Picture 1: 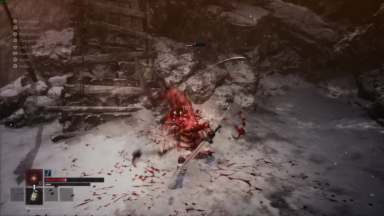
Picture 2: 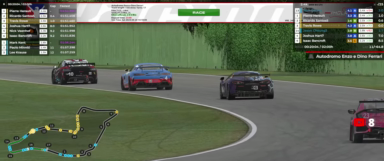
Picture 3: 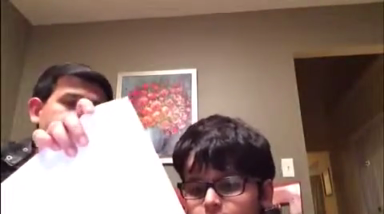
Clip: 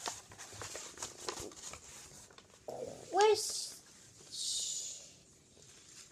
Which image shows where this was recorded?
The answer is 3